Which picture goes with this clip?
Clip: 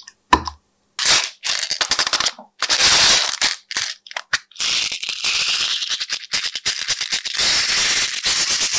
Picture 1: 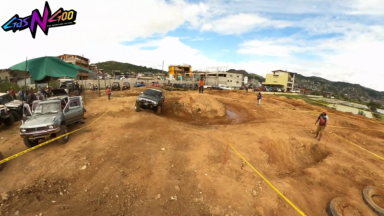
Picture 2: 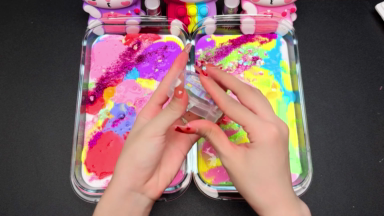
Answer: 2